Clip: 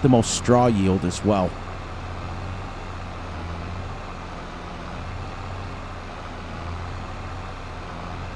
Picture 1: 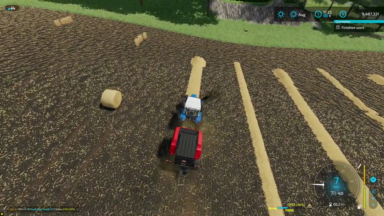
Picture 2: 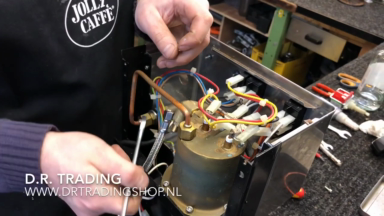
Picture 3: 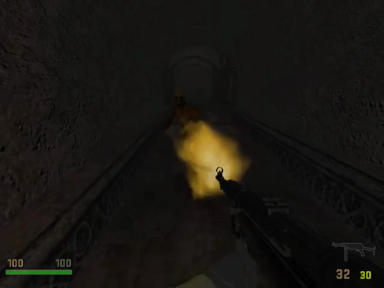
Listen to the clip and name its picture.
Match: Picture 1